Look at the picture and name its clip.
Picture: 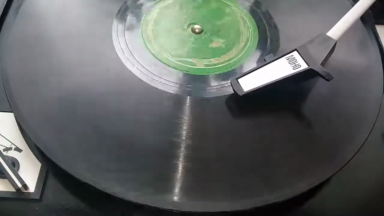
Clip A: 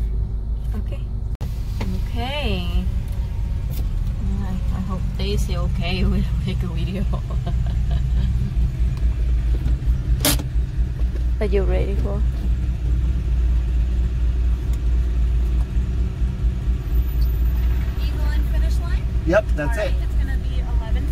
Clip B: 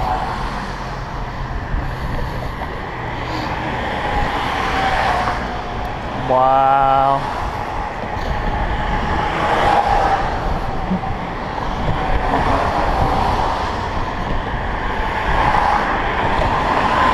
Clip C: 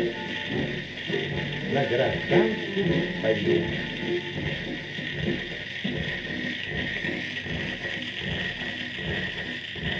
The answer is C